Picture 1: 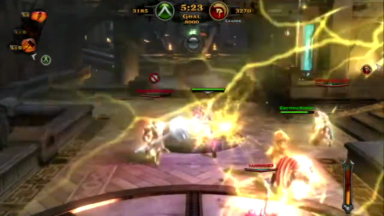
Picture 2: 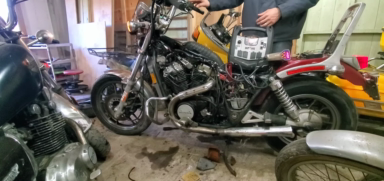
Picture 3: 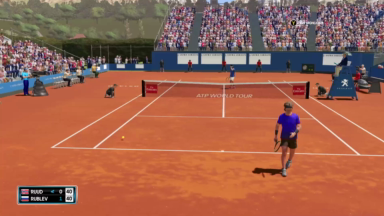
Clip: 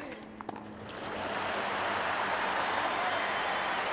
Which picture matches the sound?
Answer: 3